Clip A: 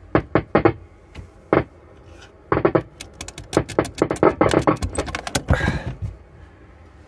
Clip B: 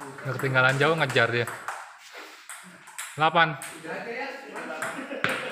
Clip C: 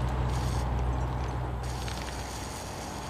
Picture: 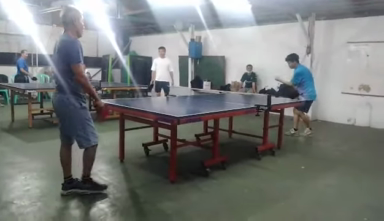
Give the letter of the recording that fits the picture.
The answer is B